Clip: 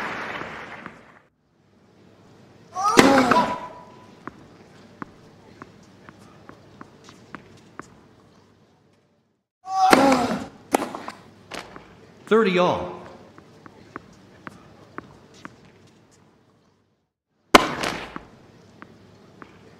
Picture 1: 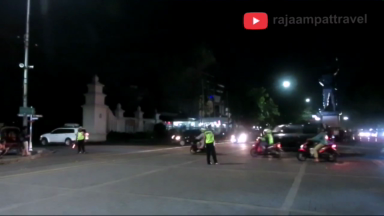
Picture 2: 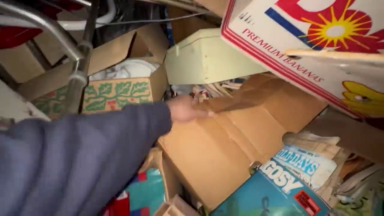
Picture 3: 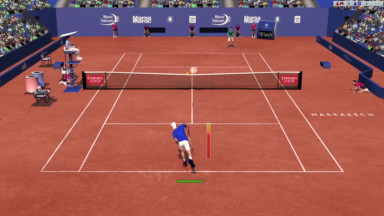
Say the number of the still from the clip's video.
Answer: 3